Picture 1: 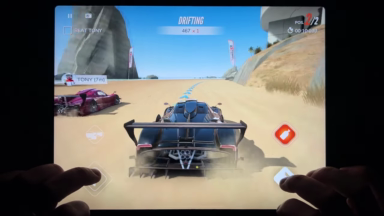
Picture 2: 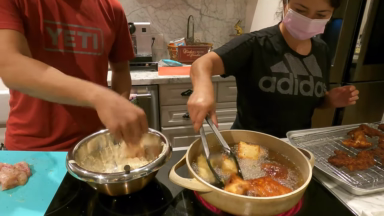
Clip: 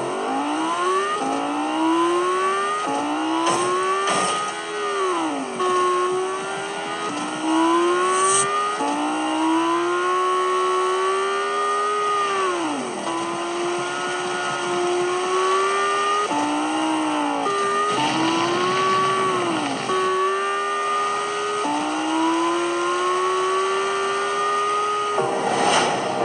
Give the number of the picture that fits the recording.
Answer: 1